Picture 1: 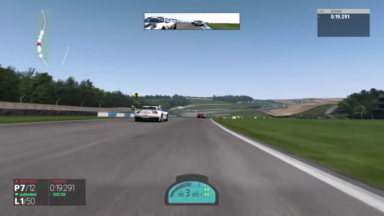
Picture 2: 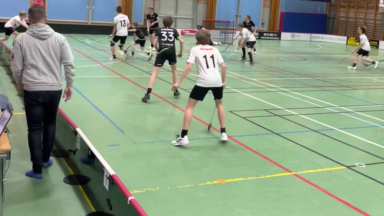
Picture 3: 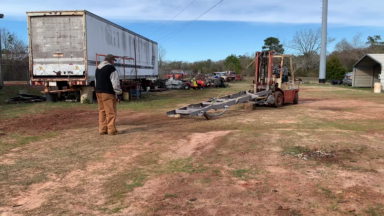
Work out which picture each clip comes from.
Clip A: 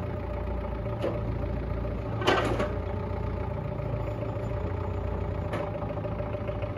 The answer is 3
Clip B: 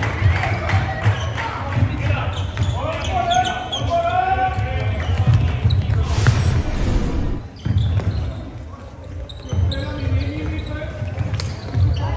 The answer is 2